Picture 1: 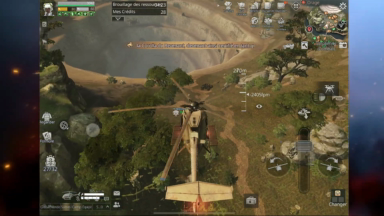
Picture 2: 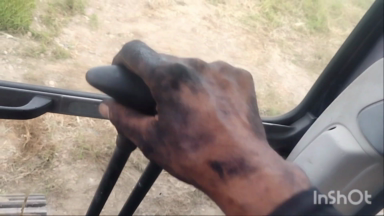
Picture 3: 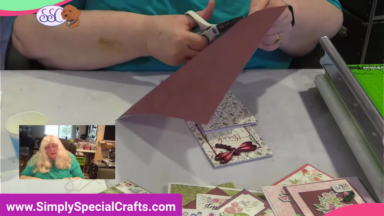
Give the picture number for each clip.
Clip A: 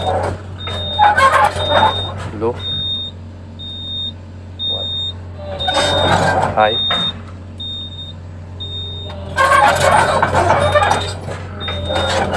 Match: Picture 2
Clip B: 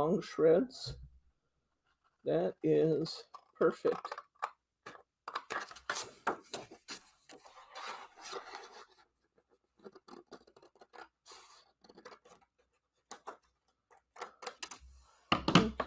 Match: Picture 3